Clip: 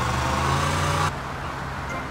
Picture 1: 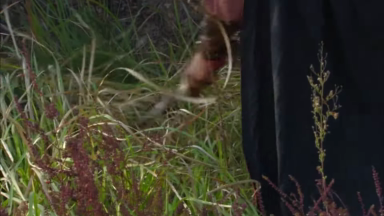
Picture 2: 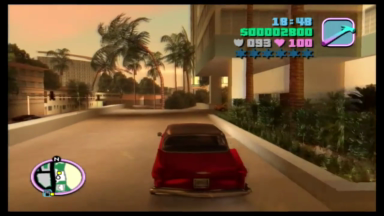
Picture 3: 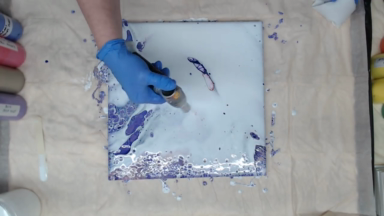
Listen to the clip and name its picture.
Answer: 2